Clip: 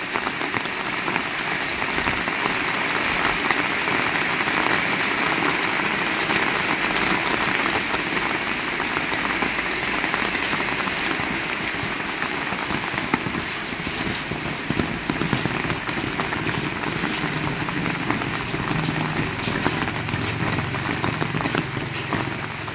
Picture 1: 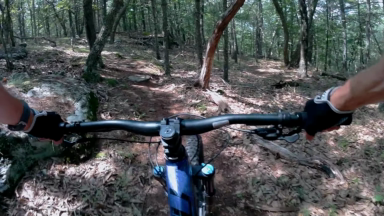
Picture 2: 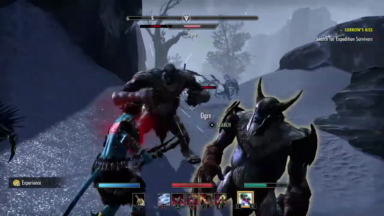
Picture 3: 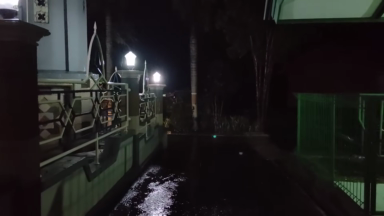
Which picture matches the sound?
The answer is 3